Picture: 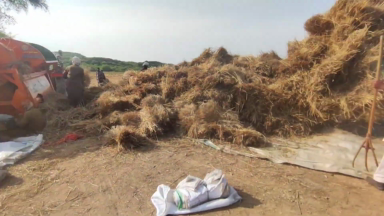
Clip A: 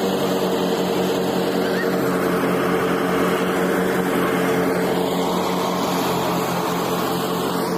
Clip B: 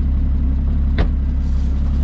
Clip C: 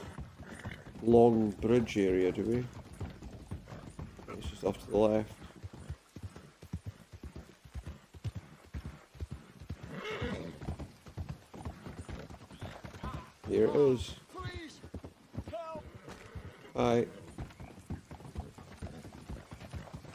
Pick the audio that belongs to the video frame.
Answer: A